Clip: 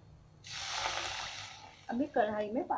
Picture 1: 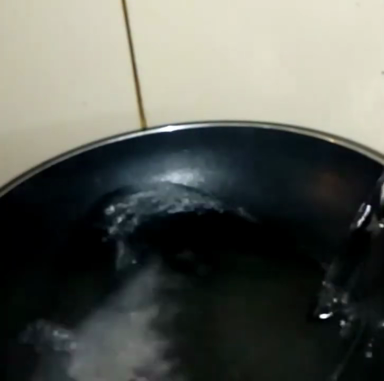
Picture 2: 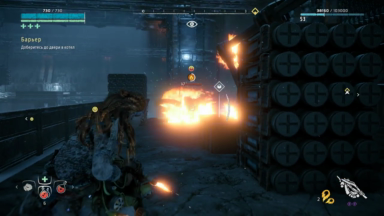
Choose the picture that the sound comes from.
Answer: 1